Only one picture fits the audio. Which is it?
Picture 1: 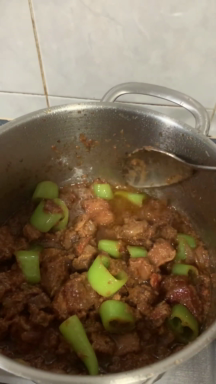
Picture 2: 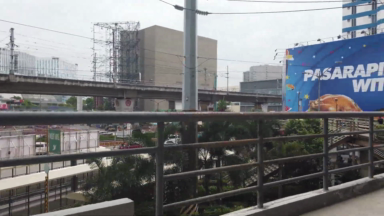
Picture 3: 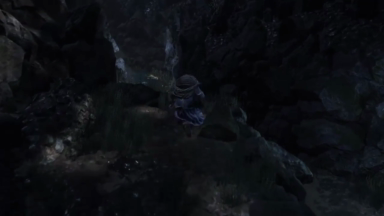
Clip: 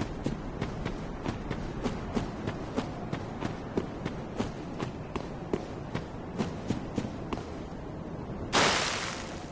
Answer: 3